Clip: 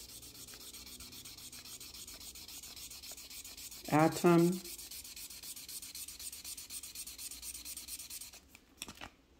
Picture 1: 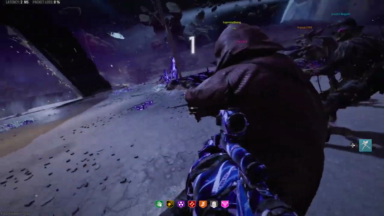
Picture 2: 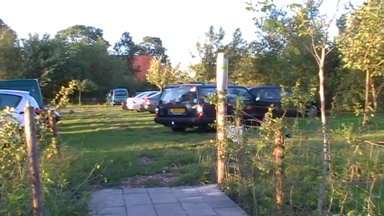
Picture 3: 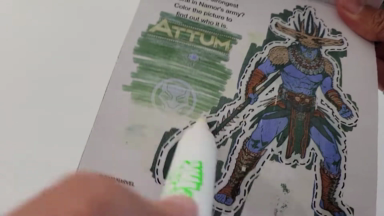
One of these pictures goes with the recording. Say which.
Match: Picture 3